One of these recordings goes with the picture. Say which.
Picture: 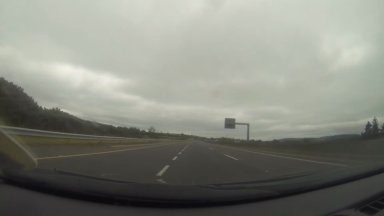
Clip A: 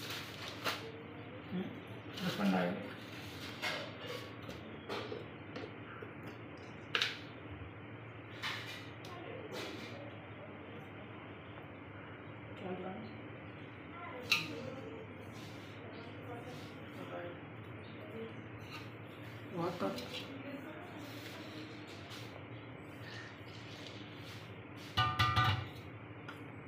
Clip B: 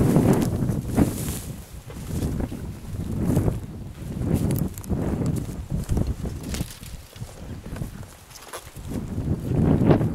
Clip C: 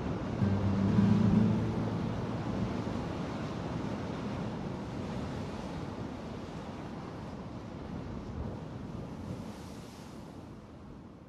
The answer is C